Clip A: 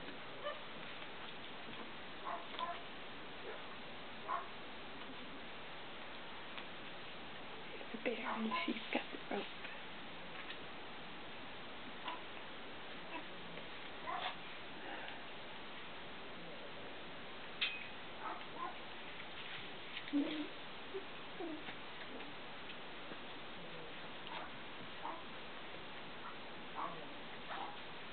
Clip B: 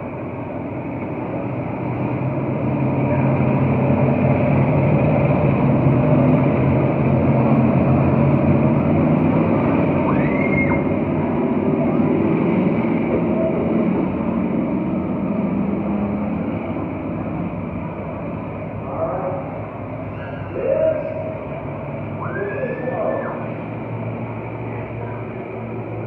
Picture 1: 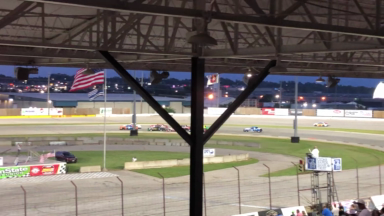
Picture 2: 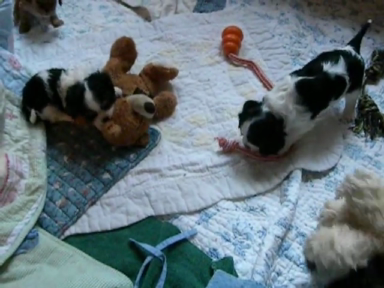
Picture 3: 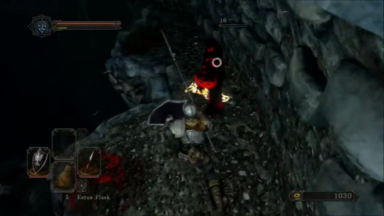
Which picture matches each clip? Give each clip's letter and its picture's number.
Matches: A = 2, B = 1